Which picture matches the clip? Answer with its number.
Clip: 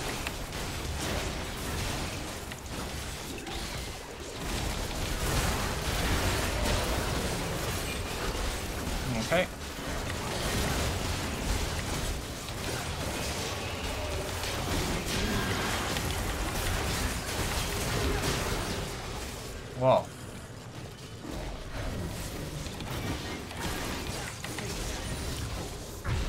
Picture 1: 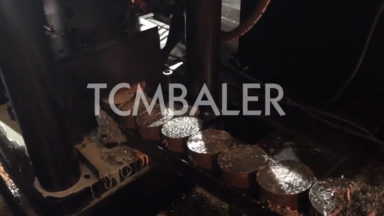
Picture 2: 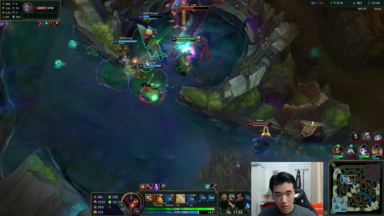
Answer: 2